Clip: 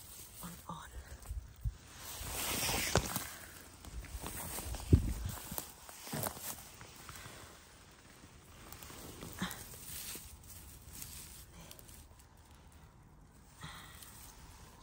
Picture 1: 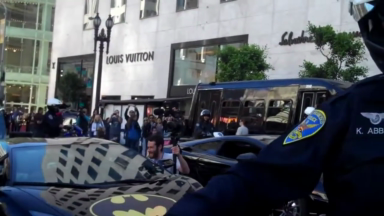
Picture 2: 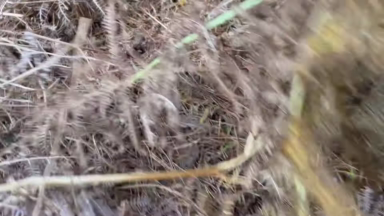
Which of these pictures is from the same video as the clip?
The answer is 2